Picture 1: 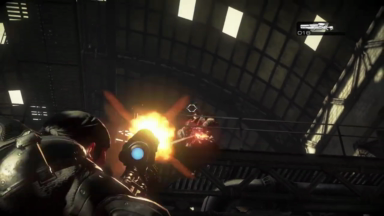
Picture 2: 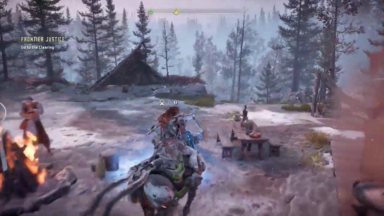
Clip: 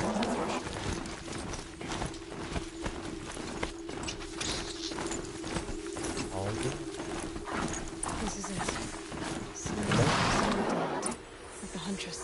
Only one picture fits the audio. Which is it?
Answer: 2